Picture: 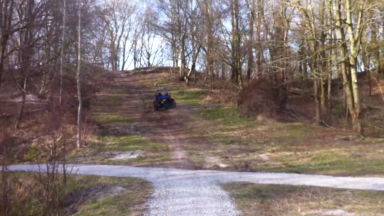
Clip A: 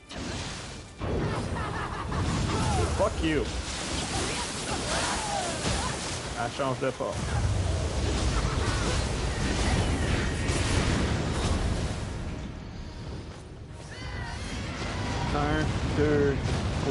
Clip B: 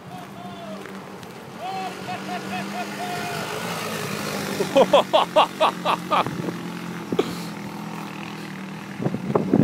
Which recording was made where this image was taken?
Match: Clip B